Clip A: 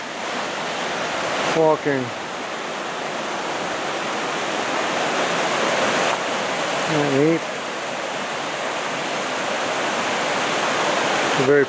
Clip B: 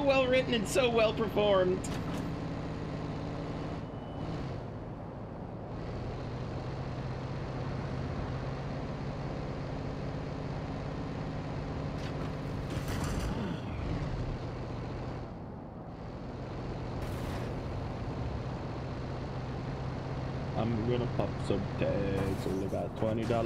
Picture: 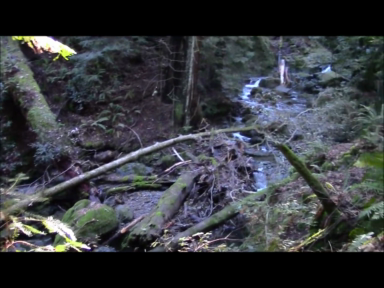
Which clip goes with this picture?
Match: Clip A